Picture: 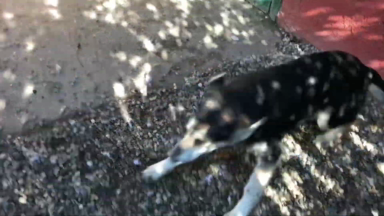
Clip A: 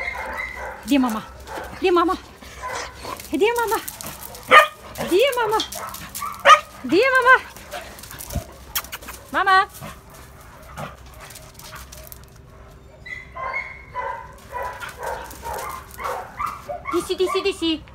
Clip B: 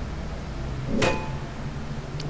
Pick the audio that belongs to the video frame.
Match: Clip A